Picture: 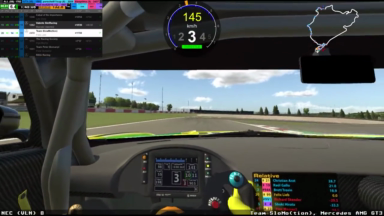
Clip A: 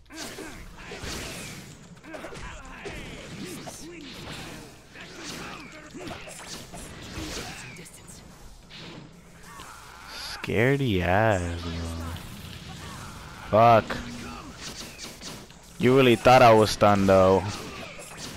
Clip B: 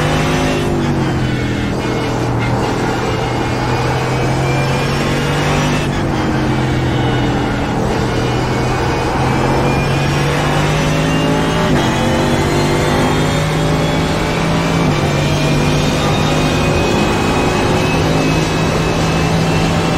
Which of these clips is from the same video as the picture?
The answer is B